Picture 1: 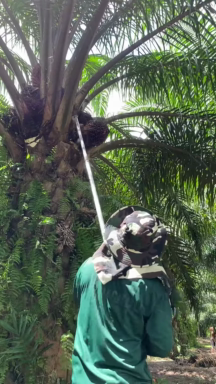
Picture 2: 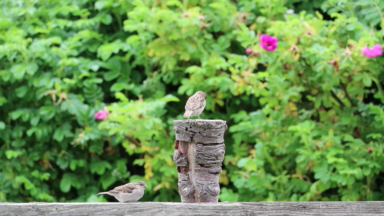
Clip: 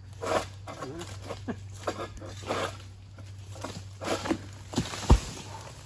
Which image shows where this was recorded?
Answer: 1